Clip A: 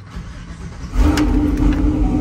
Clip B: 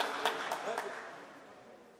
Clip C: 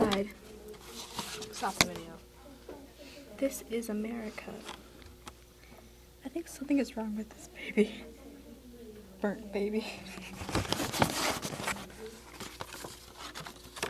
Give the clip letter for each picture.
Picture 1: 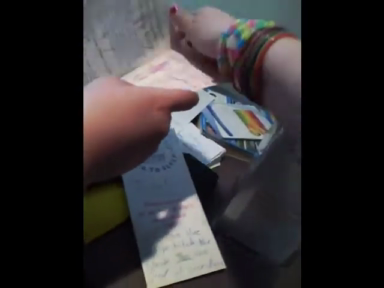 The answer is C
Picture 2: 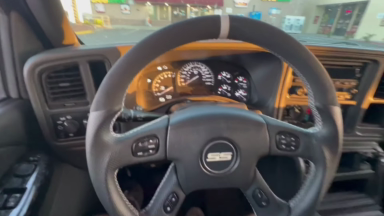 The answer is A